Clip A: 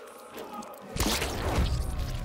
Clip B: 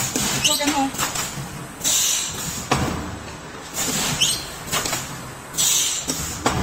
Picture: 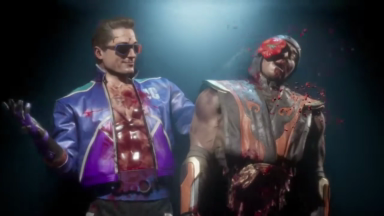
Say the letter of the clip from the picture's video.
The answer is A